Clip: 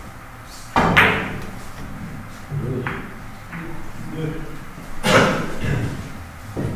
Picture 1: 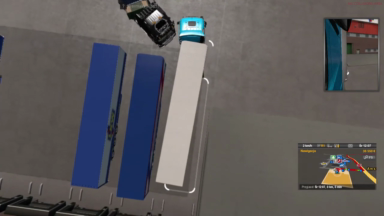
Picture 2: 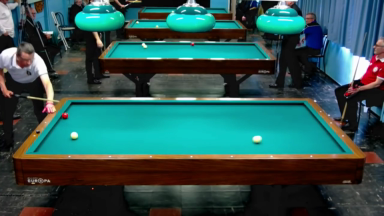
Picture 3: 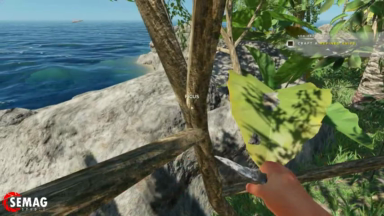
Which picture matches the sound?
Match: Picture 2